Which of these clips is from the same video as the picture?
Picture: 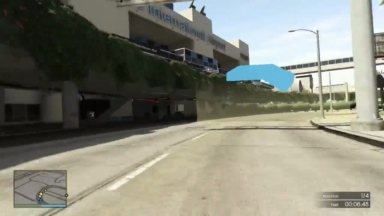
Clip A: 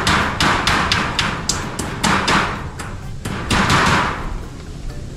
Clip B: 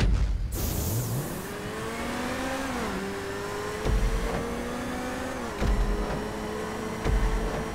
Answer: B